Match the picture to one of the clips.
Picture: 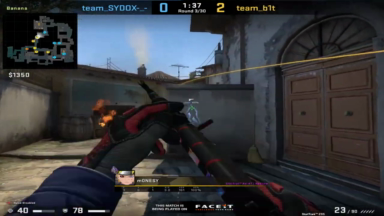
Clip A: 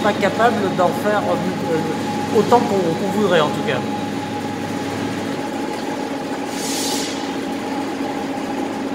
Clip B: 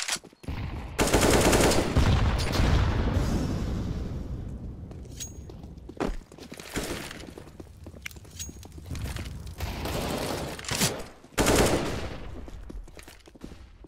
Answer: B